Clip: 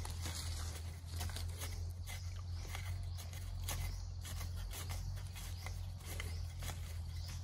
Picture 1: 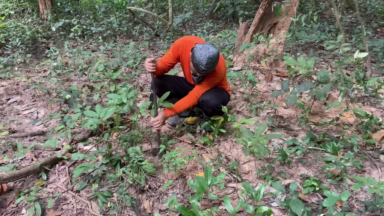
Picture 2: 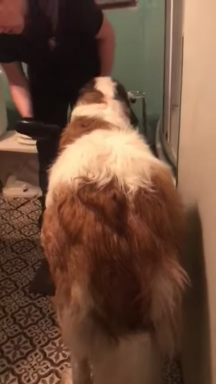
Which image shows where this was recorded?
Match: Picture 1